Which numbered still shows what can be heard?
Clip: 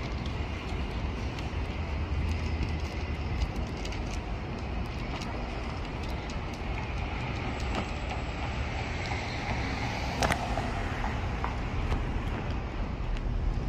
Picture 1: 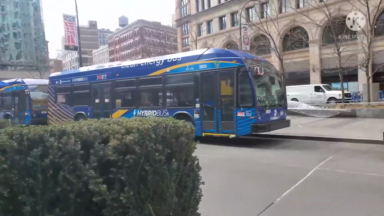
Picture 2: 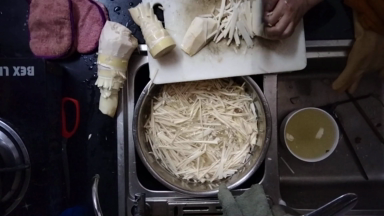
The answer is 1